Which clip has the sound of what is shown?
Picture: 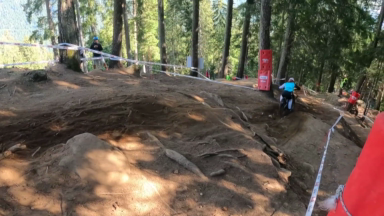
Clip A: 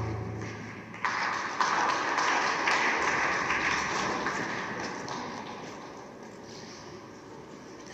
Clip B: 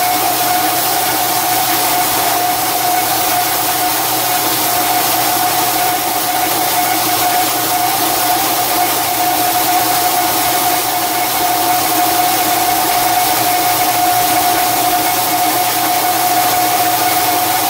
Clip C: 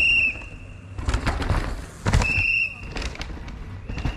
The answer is C